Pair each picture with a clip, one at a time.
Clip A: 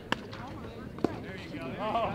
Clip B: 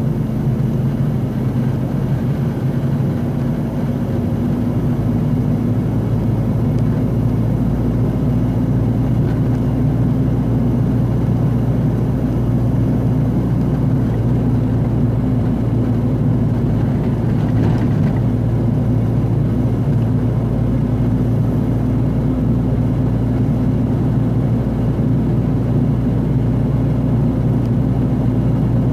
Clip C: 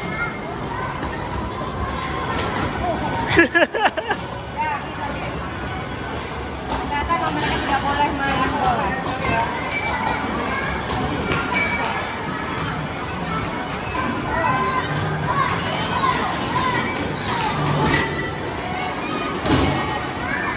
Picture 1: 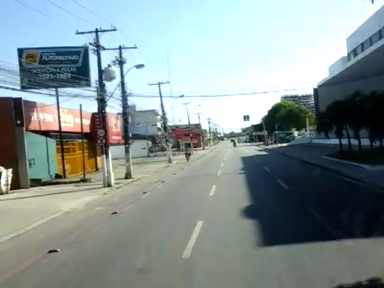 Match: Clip B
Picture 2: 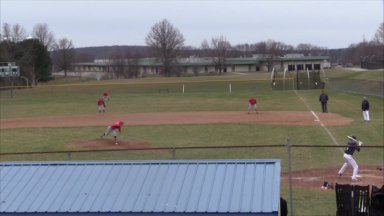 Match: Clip A